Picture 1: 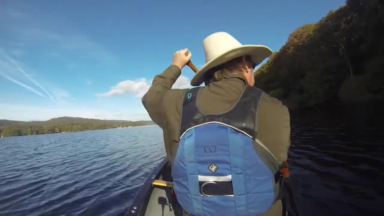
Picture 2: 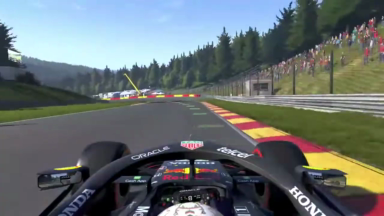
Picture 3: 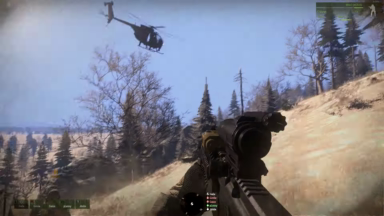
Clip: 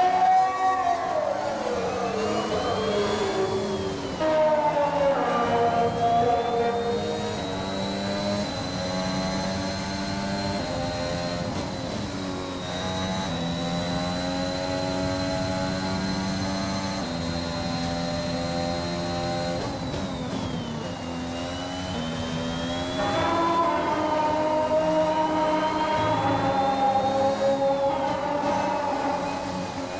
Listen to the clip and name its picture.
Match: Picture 2